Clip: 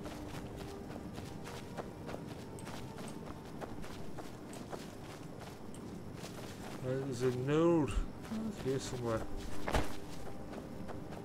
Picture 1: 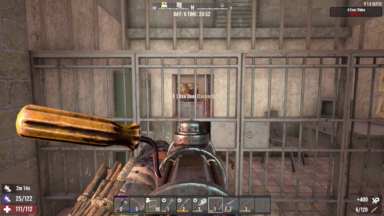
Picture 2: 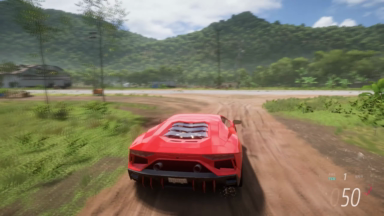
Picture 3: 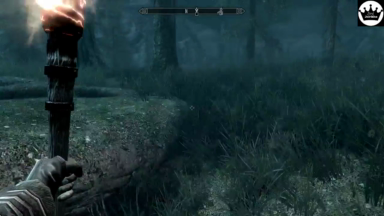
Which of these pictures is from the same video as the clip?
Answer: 3